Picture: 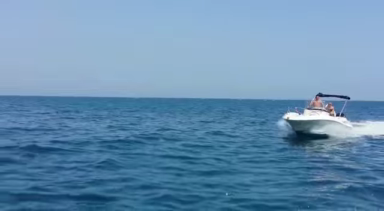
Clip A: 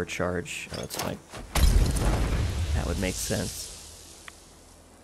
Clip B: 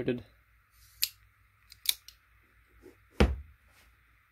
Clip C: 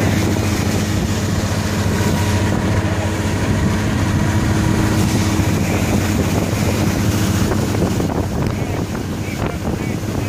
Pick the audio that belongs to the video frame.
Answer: C